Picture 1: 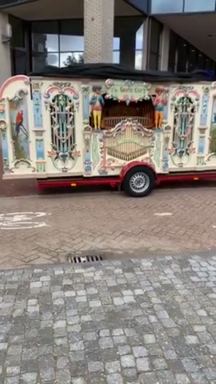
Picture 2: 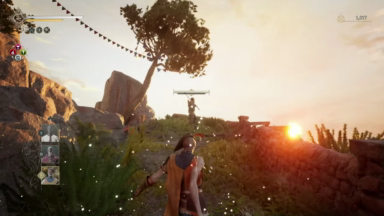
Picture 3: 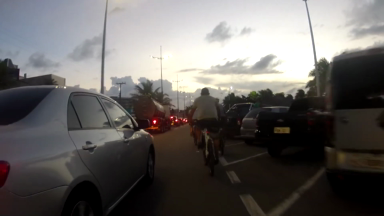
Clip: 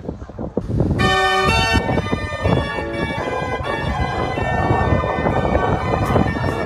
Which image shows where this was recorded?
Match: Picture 1